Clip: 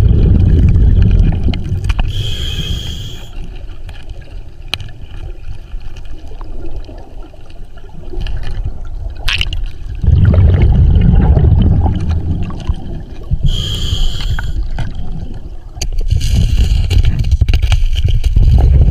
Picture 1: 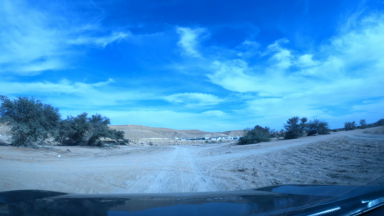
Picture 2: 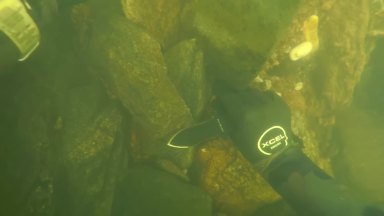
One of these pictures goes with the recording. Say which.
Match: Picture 2